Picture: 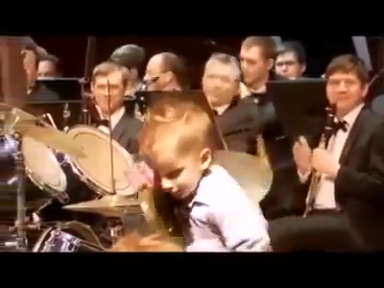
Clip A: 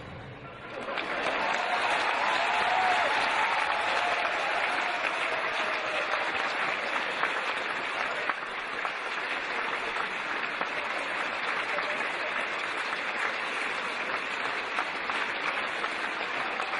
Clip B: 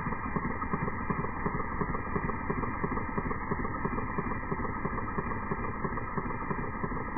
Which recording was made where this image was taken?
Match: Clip A